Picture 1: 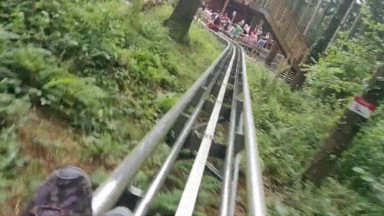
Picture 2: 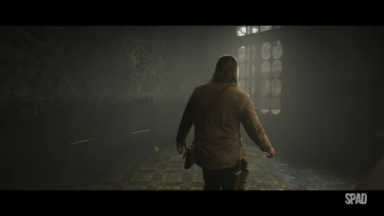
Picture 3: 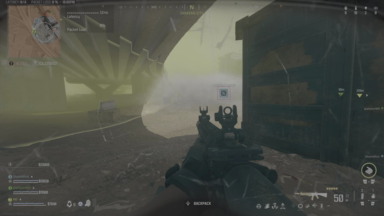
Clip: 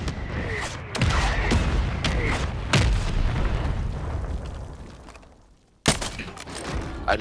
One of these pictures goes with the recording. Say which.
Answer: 3